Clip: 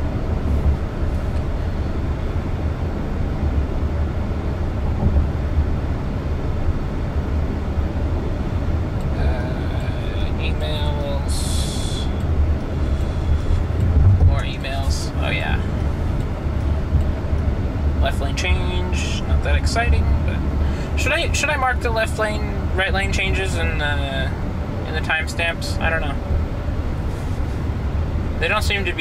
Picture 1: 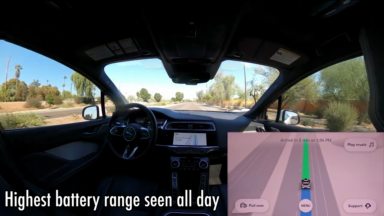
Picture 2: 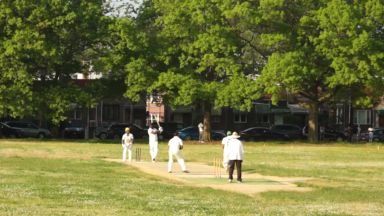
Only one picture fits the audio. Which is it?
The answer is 1